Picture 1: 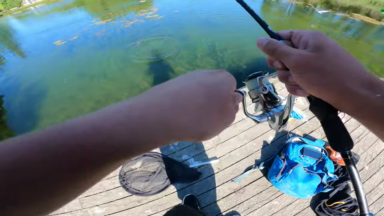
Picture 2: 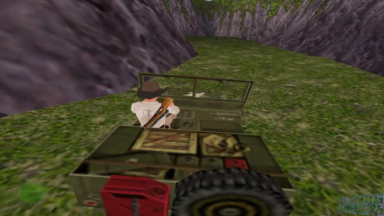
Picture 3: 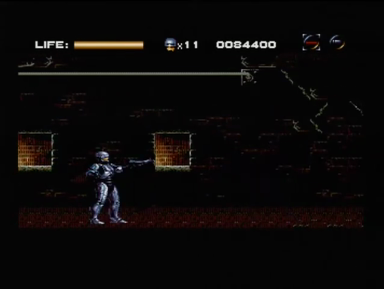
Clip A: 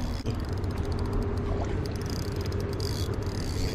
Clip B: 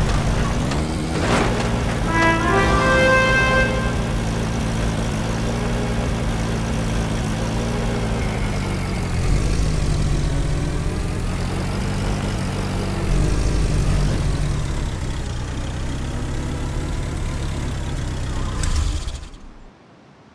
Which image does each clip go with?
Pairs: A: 1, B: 2